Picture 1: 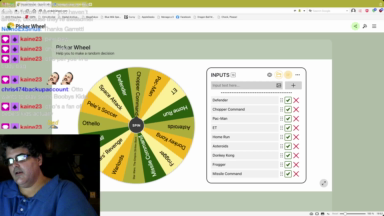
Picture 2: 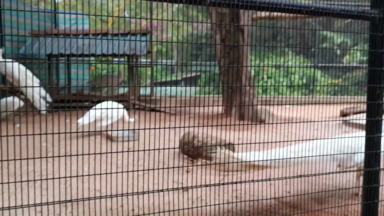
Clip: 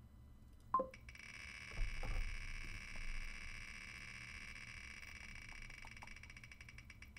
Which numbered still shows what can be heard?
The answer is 1